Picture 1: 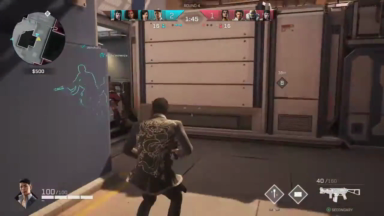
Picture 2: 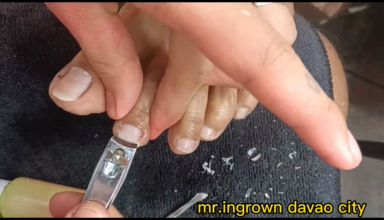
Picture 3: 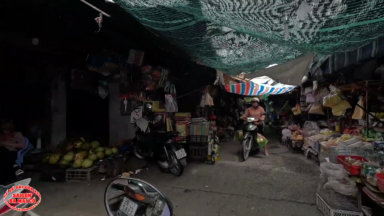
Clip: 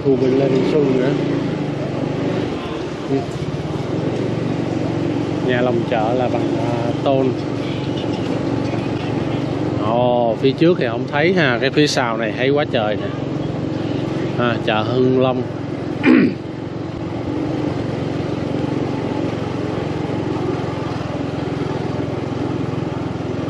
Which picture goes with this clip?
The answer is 3